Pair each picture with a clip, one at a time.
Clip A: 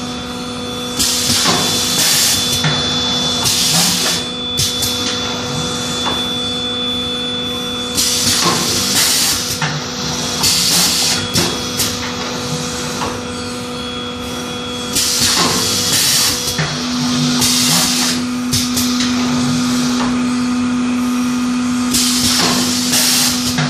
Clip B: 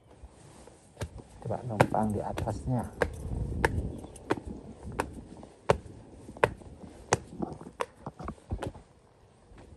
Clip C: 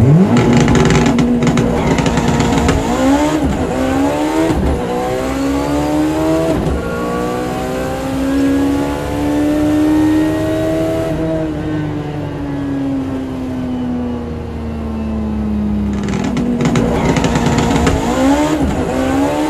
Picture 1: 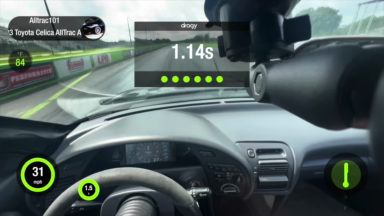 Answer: C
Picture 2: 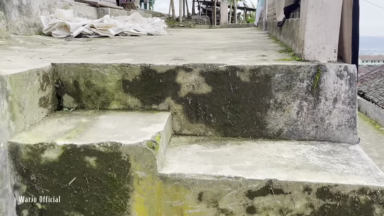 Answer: B